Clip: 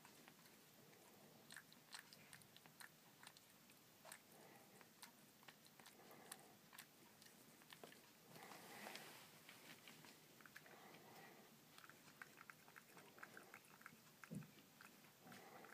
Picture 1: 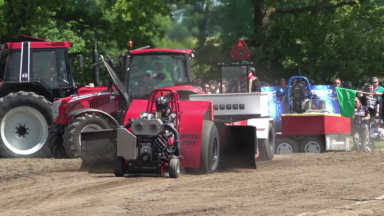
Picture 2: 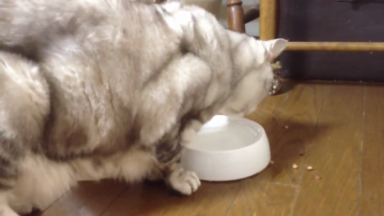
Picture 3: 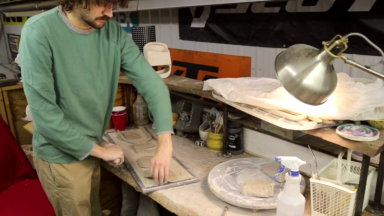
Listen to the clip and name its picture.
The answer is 2